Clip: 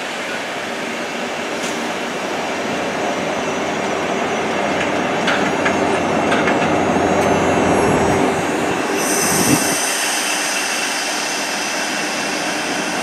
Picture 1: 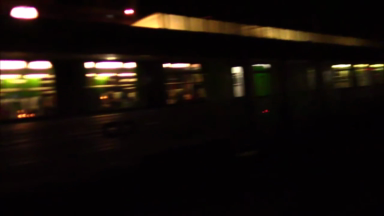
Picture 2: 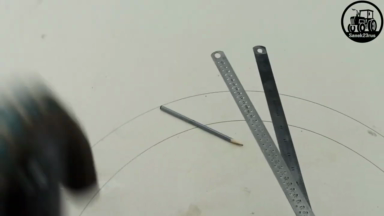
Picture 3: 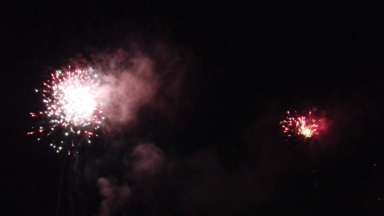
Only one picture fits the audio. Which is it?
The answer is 1